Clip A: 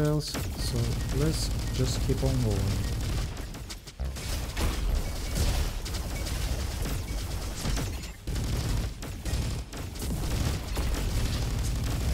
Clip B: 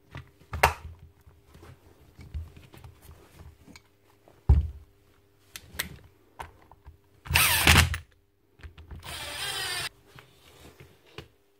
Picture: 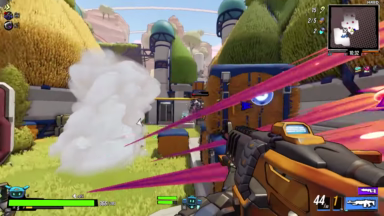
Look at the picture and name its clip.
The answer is A